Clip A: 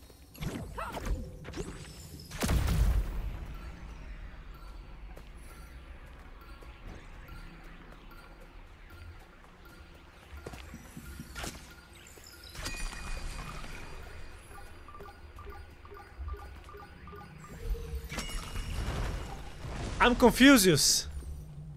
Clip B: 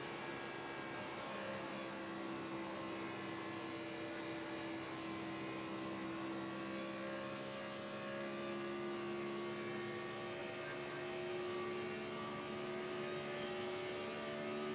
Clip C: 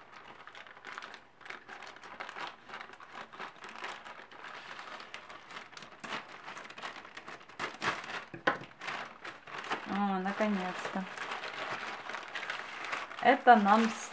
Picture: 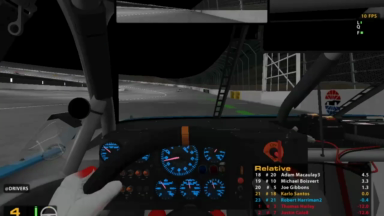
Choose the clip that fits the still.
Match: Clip B